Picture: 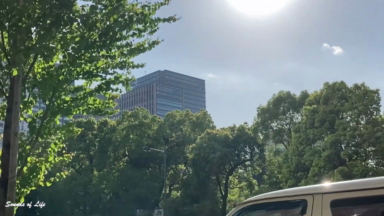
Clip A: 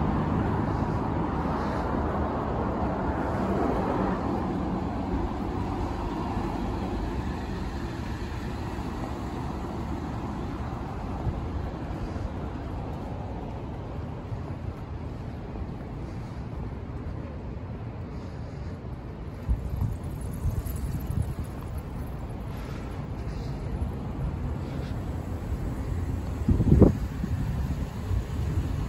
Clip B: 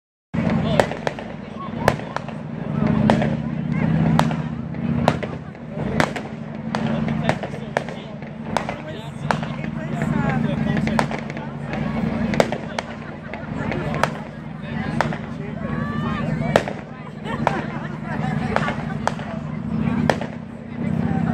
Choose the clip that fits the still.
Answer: A